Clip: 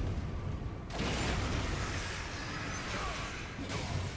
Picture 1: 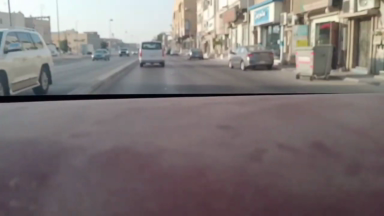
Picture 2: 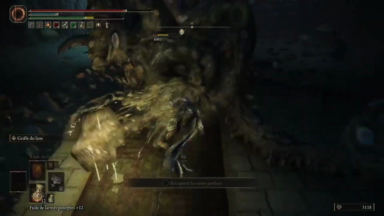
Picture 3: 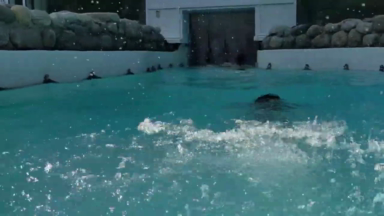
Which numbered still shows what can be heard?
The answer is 2